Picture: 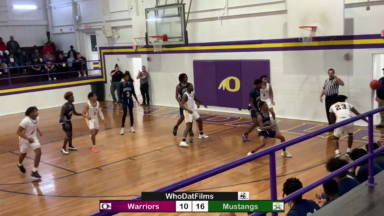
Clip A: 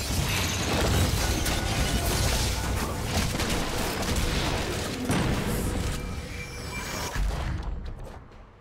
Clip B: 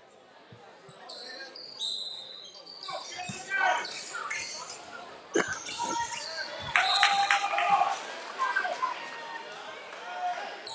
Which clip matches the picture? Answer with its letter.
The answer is B